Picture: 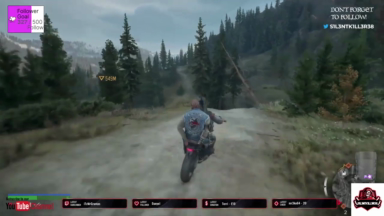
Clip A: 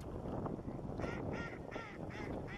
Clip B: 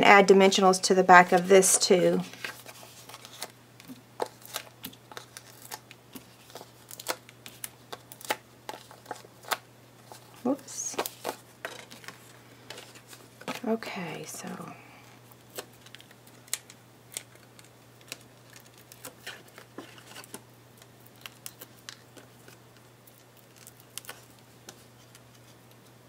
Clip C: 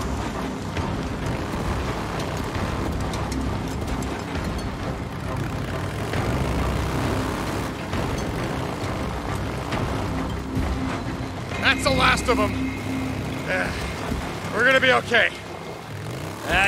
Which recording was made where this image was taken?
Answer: C